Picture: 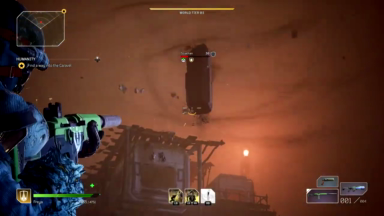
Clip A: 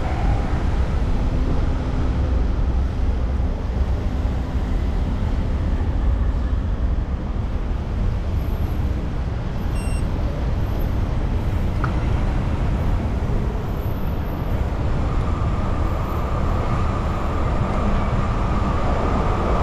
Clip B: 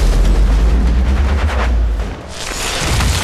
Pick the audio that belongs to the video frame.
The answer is B